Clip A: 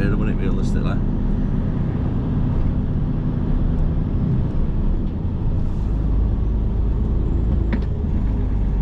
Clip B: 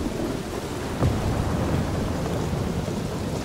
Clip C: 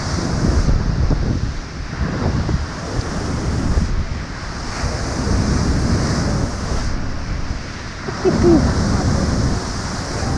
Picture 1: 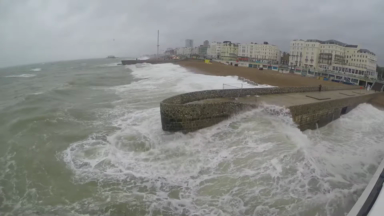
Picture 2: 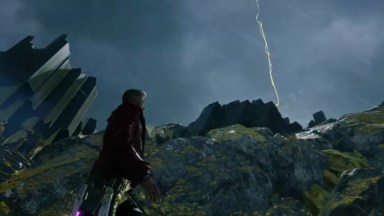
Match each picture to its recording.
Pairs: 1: C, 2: B